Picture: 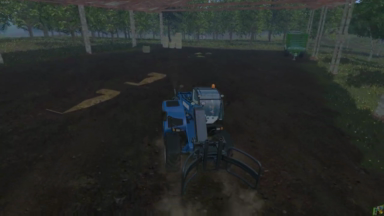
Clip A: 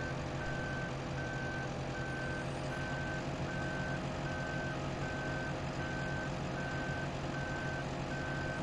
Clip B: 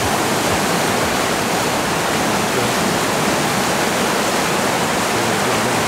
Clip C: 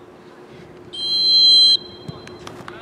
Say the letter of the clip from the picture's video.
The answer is A